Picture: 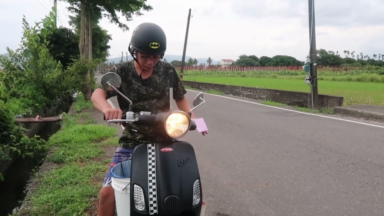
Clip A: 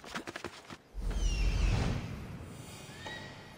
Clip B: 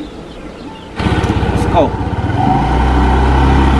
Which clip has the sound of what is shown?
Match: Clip B